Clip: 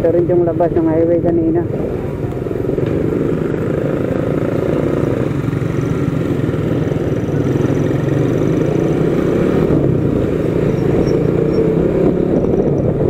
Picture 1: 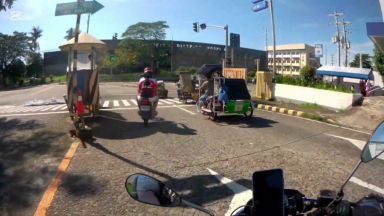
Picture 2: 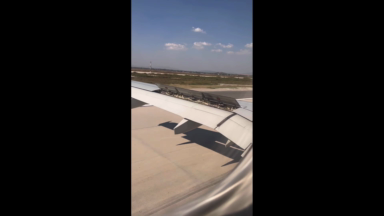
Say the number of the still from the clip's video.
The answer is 1